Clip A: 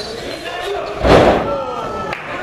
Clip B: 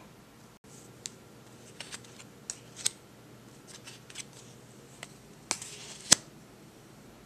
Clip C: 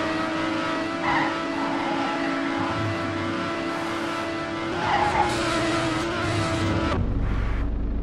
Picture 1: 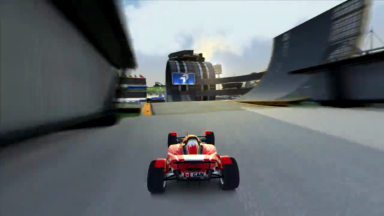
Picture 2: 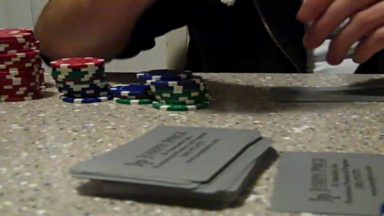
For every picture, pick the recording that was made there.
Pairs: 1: C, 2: B